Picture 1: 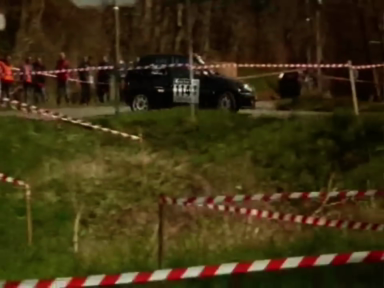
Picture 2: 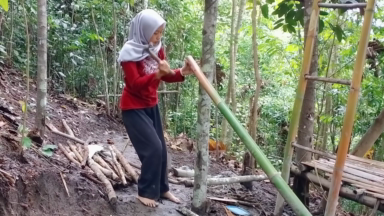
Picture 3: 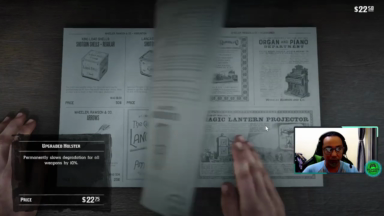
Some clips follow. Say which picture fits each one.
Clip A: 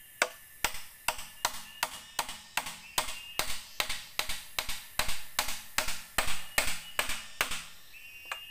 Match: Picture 2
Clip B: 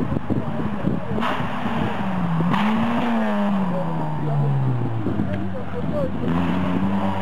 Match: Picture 1